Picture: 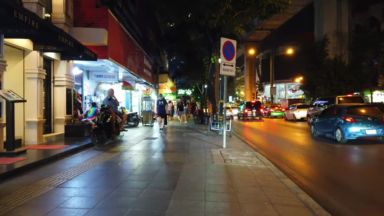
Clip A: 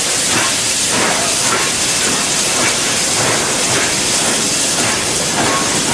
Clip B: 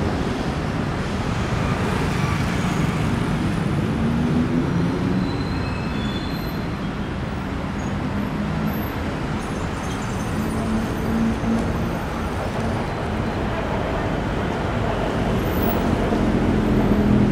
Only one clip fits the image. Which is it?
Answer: B